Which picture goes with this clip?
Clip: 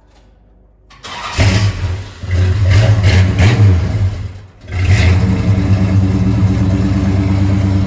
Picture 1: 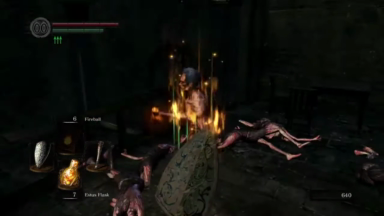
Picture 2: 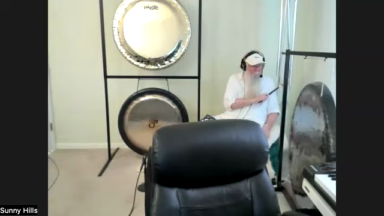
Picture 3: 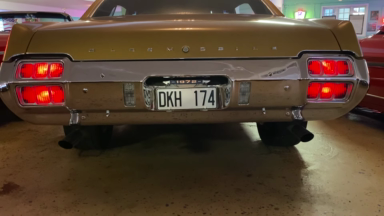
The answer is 3